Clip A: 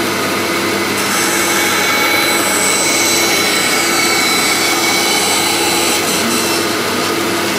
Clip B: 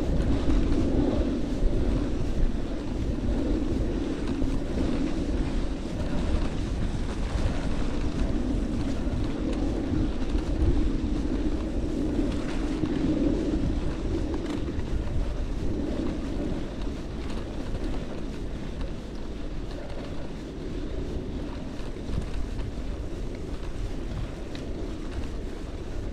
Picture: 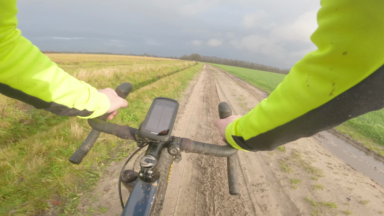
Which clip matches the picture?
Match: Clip B